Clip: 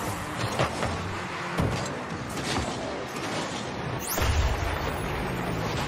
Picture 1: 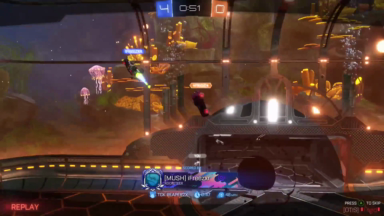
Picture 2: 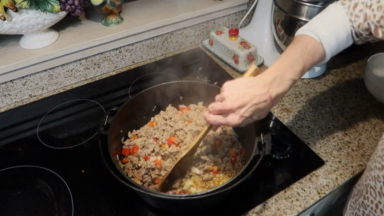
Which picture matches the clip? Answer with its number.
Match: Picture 1